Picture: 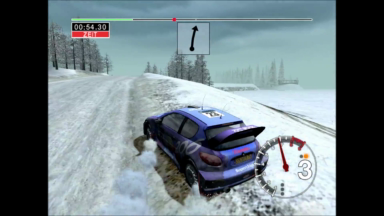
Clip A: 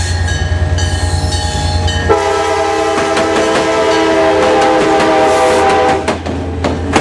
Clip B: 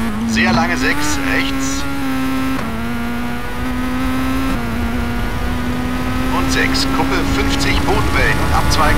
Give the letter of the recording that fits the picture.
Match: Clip B